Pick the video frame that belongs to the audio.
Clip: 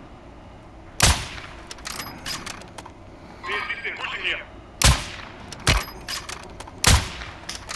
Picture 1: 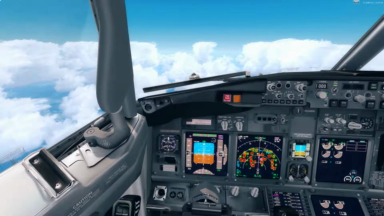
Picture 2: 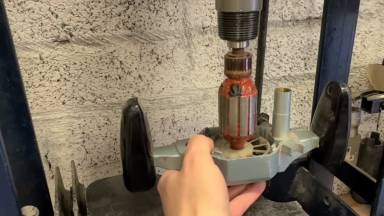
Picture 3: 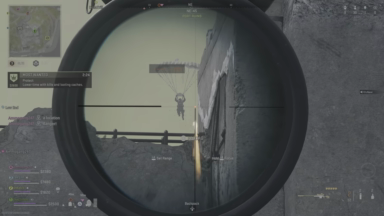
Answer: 3